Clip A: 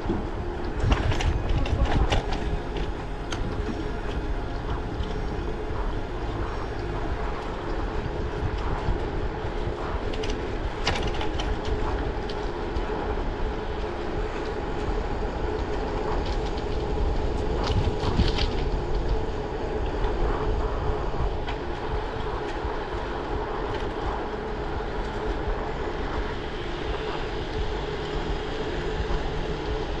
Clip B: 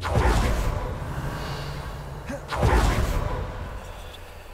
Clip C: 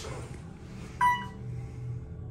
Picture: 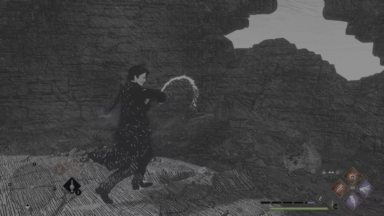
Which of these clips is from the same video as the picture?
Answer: B